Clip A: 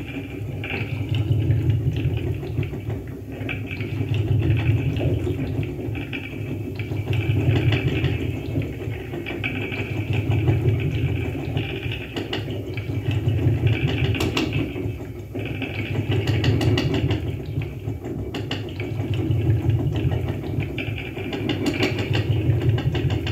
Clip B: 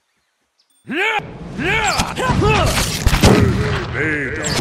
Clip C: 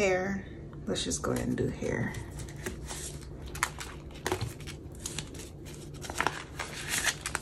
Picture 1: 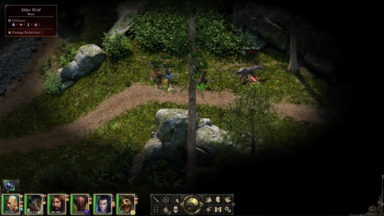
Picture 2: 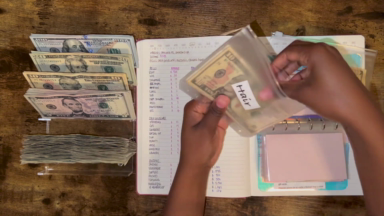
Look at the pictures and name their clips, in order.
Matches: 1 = B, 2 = C